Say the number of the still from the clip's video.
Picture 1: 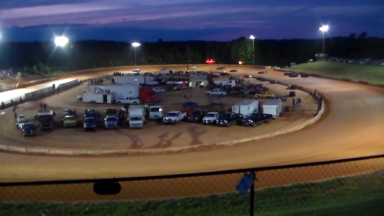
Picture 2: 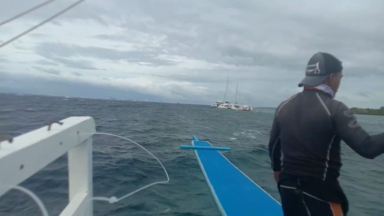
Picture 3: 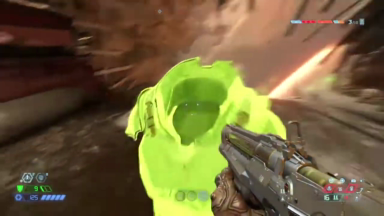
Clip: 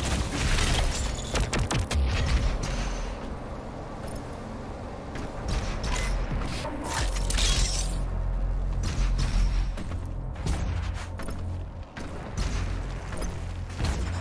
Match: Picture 3